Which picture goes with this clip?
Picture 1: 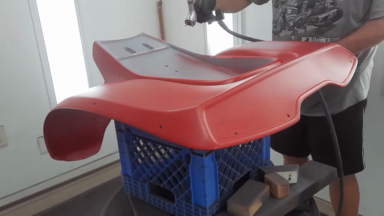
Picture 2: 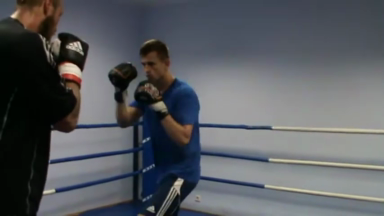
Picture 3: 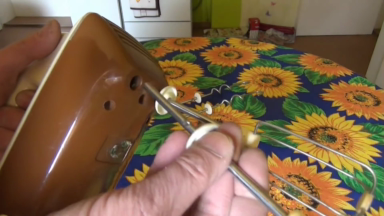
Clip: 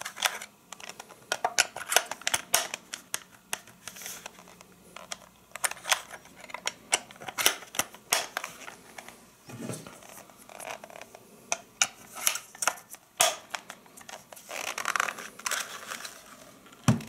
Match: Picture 3